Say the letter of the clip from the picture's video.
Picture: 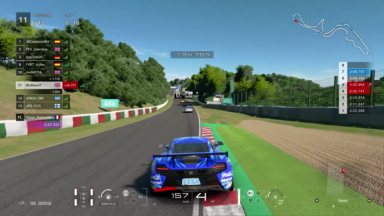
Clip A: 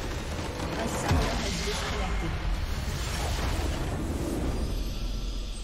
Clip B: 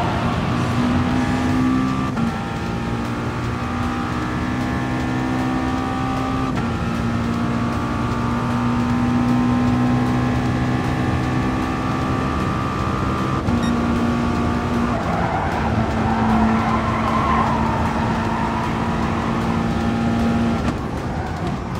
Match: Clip B